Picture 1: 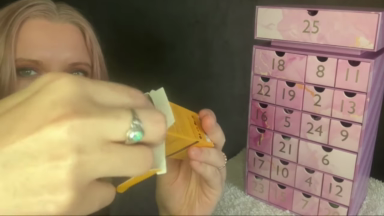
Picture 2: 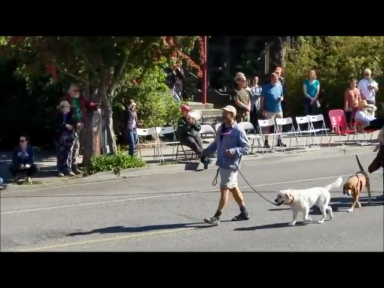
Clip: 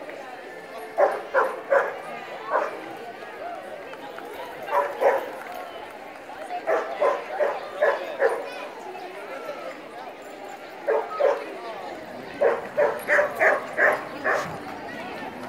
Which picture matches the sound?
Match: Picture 2